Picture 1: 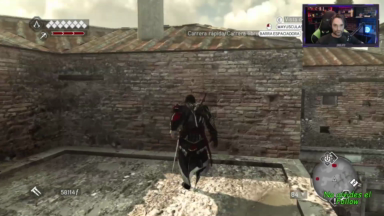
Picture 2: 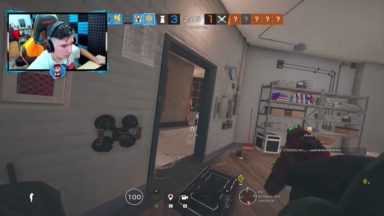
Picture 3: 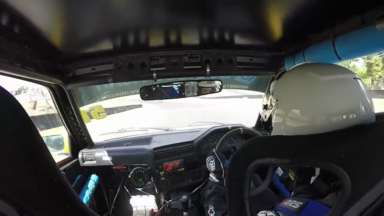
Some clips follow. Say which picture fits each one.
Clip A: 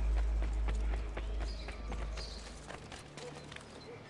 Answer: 1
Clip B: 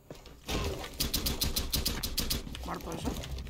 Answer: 2